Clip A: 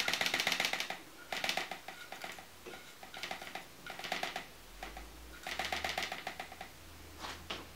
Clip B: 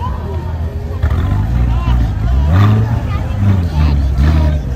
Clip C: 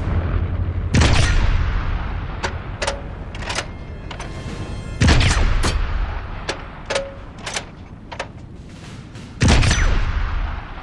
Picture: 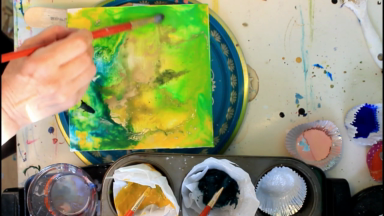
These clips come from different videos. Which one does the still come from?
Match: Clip A